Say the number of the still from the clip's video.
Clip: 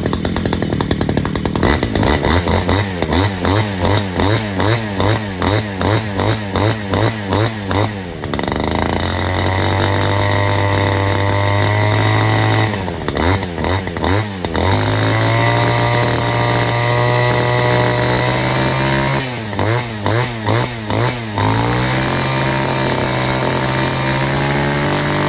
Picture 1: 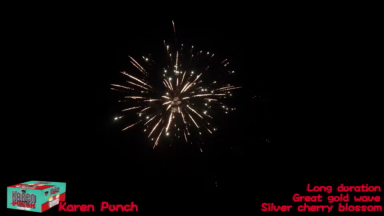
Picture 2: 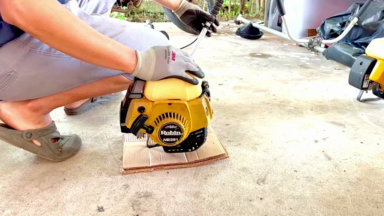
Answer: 2